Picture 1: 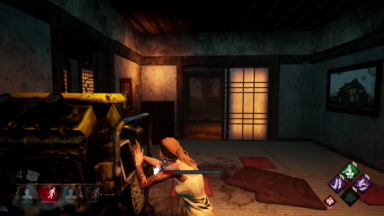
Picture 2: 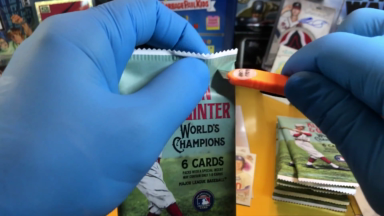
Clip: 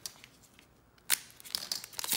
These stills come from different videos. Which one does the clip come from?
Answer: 2